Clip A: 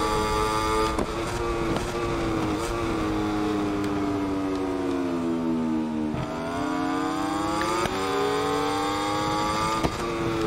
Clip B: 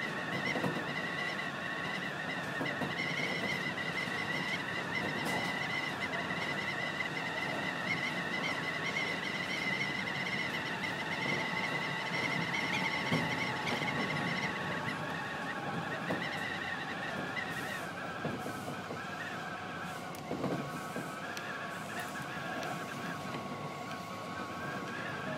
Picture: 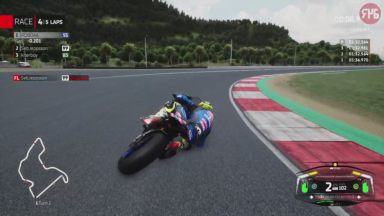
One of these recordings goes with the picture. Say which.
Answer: A